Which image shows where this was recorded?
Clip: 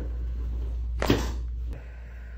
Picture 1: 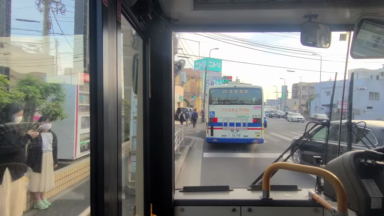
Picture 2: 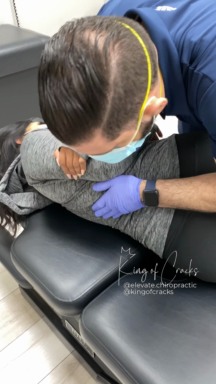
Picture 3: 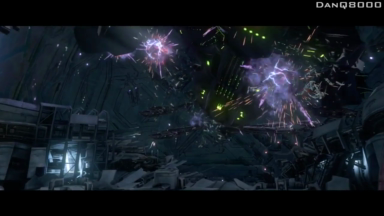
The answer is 2